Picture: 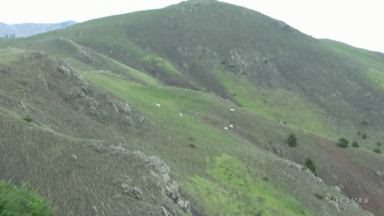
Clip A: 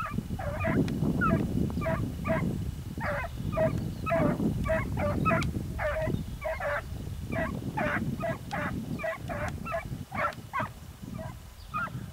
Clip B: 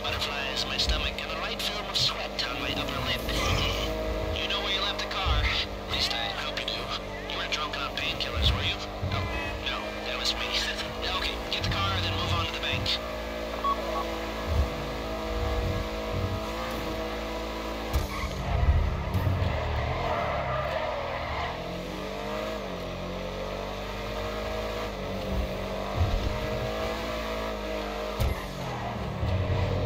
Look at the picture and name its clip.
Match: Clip A